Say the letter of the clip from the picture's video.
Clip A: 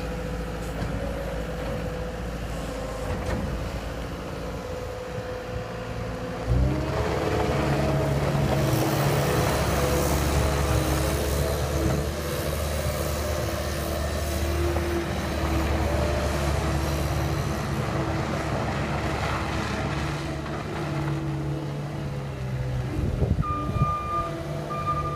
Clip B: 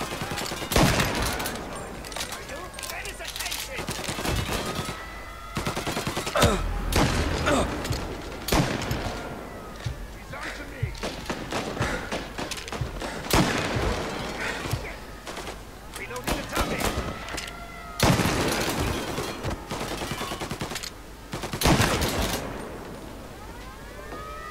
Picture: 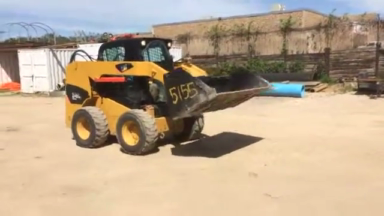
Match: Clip A